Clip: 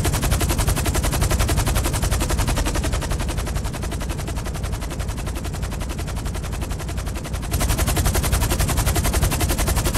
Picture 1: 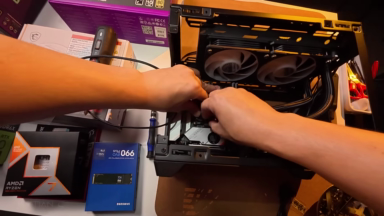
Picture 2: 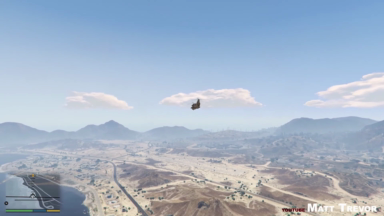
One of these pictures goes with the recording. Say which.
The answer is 2